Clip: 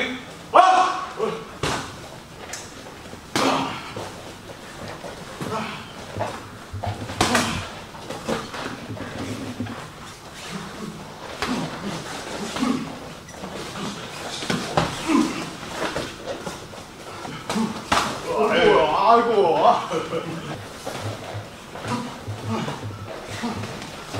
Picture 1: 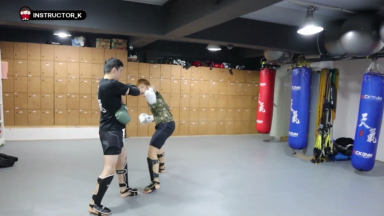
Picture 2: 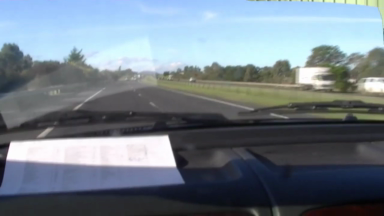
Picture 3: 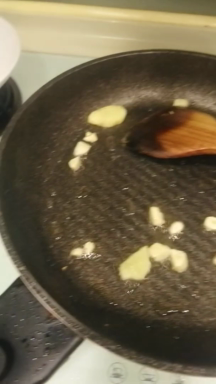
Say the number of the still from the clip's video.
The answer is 1